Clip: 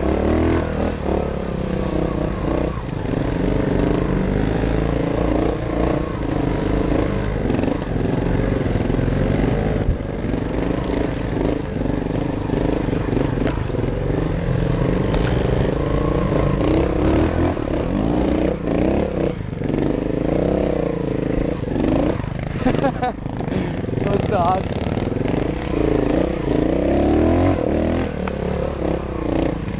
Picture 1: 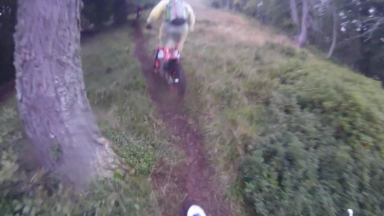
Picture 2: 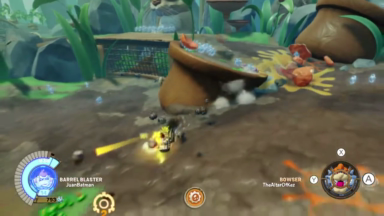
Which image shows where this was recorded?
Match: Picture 1